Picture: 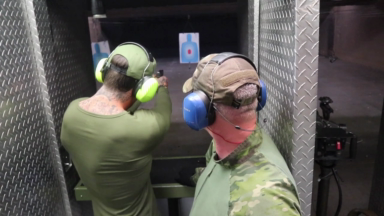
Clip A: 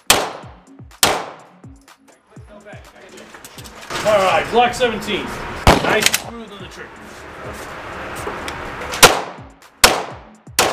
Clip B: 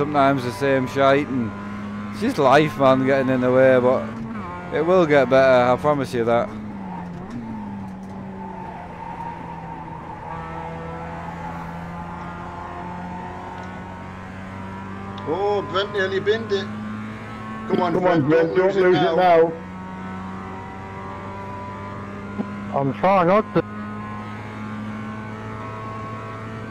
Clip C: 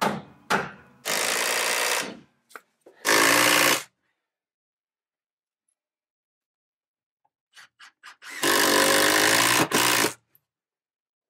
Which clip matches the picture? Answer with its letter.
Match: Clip A